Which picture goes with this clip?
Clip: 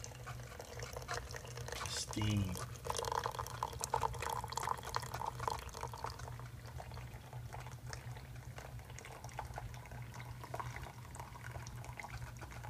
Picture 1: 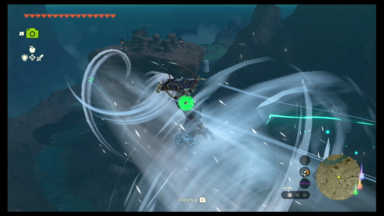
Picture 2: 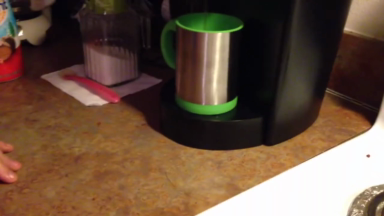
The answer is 2